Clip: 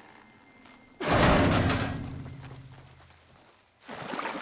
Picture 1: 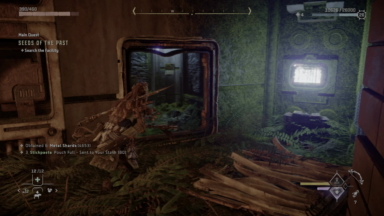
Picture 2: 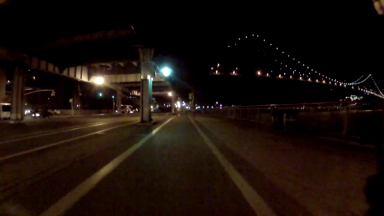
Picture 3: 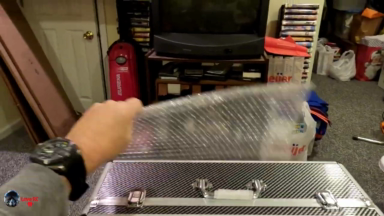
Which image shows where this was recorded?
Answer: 1